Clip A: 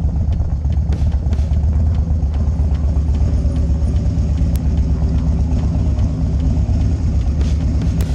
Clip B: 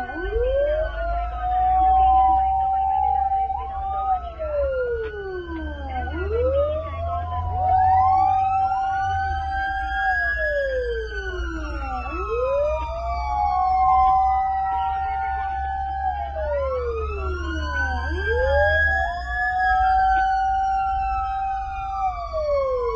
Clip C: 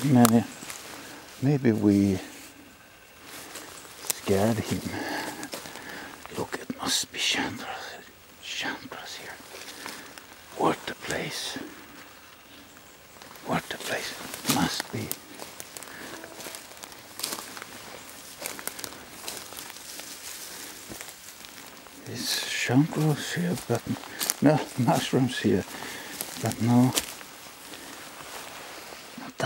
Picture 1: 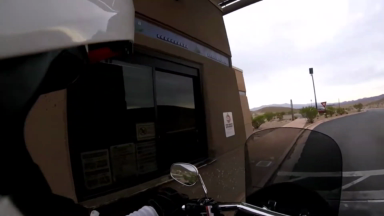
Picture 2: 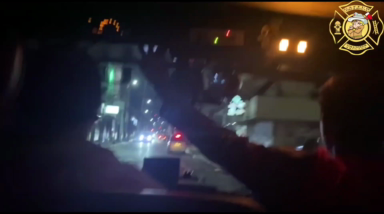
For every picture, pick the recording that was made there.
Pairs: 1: A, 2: B